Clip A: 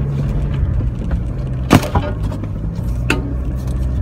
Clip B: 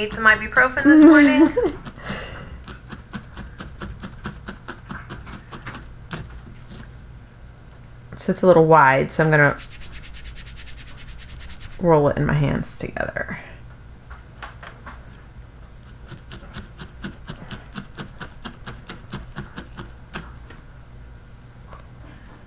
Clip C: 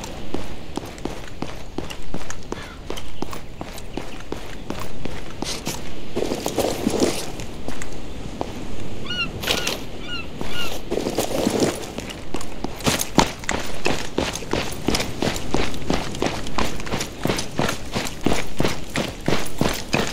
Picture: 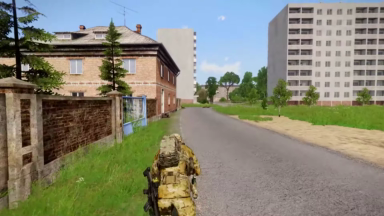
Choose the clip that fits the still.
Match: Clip C